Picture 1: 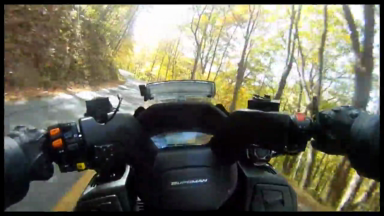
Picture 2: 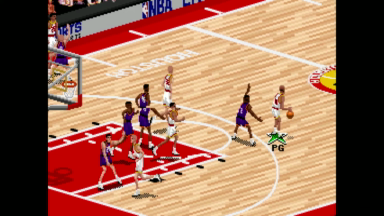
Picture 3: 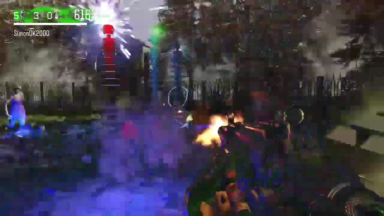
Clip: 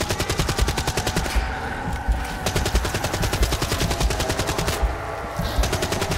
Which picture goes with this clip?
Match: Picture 3